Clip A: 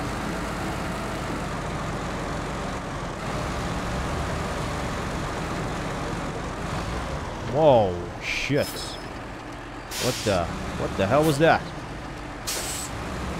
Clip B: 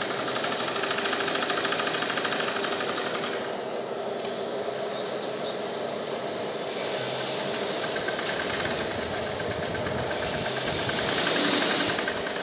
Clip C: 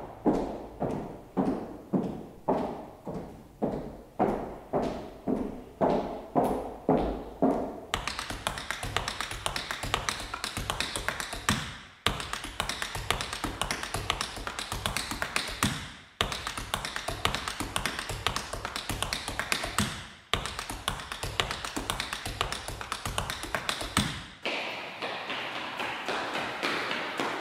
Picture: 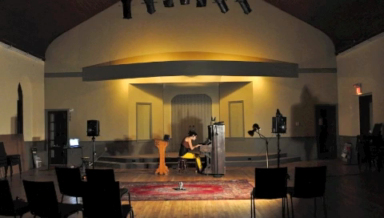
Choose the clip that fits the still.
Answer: C